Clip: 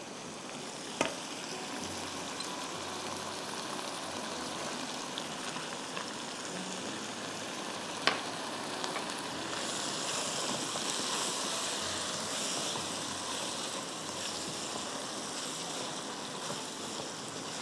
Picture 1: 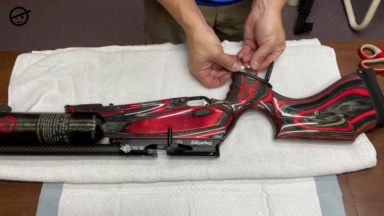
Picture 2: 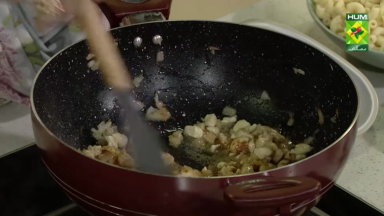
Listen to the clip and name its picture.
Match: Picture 2